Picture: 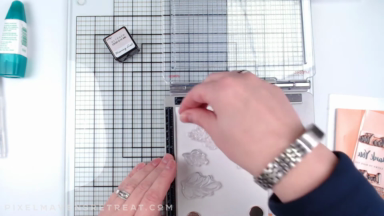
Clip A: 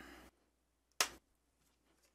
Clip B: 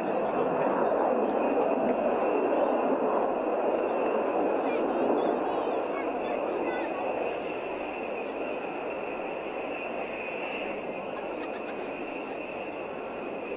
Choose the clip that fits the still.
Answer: A